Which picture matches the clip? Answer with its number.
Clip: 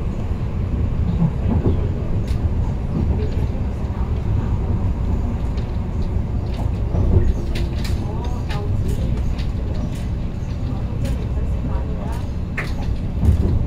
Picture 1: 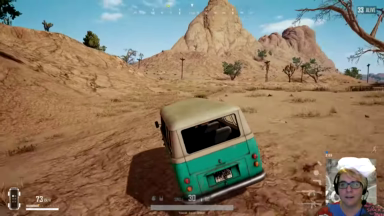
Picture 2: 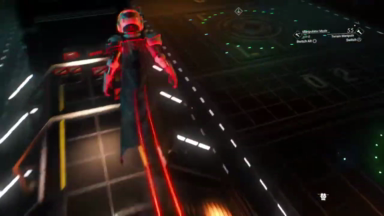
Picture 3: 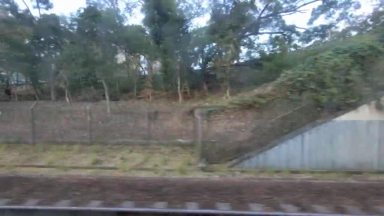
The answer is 3